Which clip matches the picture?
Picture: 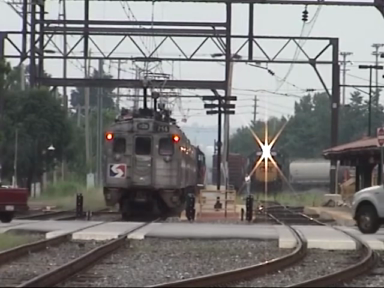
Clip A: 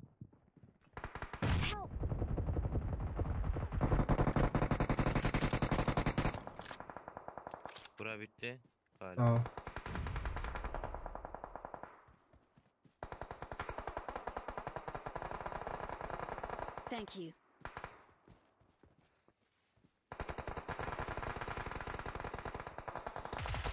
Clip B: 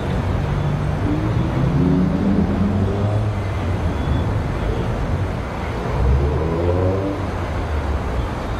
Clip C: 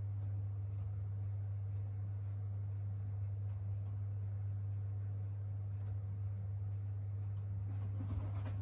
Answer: B